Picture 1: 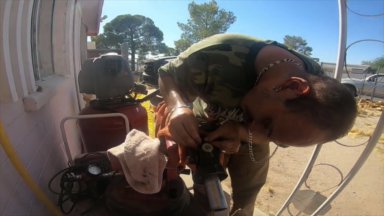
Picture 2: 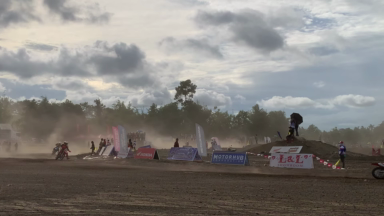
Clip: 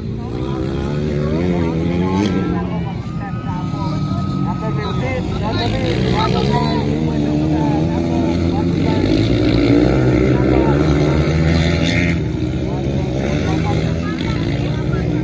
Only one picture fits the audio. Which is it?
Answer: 2